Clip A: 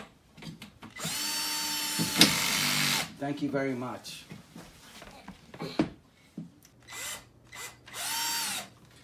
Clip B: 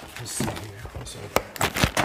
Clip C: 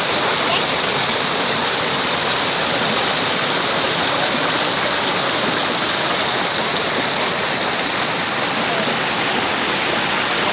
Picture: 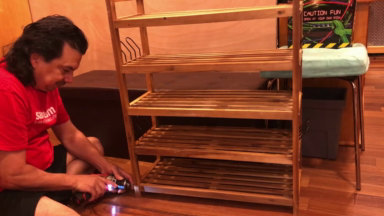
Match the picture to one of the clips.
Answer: A